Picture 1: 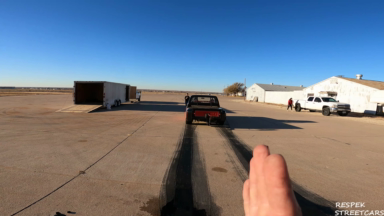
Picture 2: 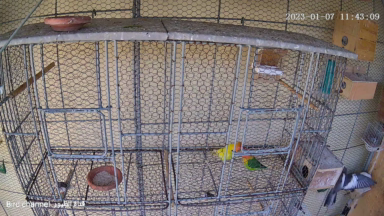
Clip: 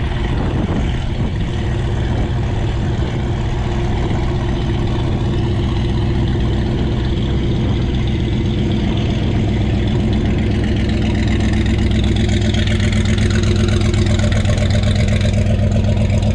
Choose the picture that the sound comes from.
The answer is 1